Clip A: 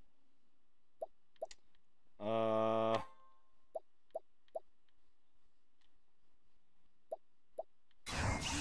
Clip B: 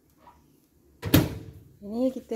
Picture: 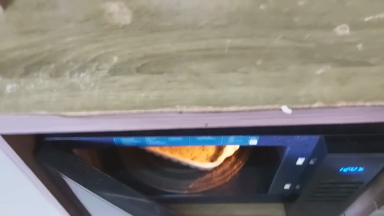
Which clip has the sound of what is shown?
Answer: B